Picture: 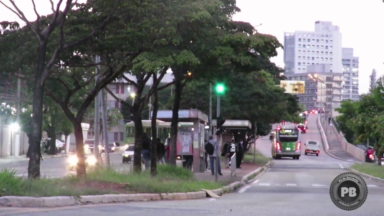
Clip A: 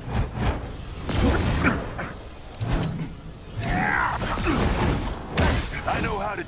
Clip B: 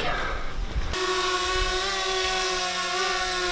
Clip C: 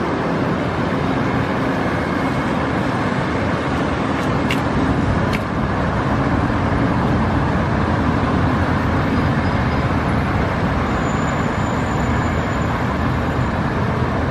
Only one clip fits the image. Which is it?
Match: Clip C